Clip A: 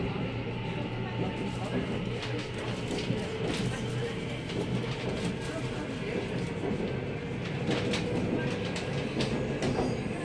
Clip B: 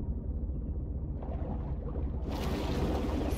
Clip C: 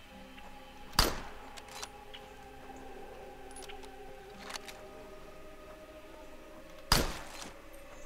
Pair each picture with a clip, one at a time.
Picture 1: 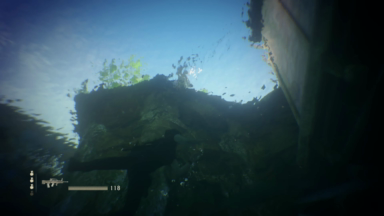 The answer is B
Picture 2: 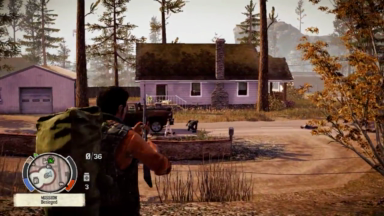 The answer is C